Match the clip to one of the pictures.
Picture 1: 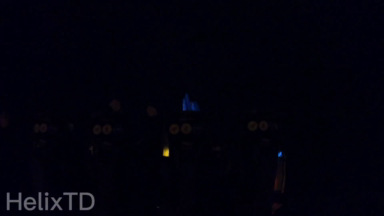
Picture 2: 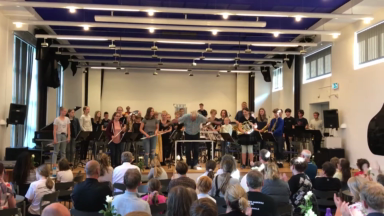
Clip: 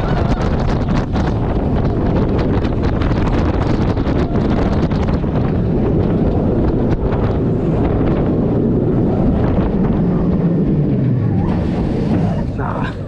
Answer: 1